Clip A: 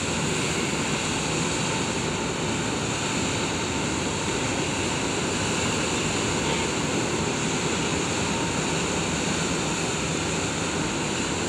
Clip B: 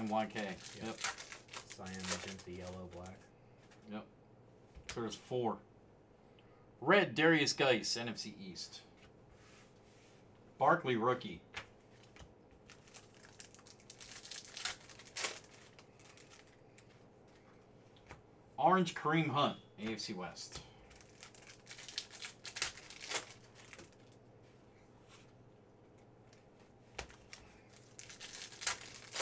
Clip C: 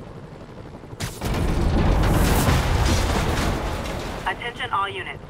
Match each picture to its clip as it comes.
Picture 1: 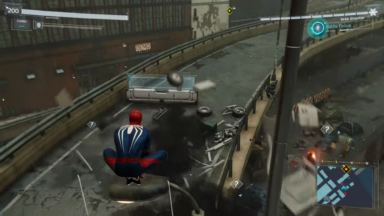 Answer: C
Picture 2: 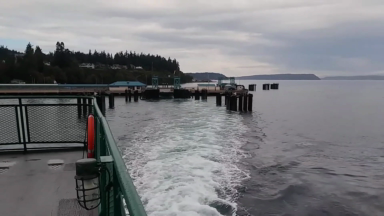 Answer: A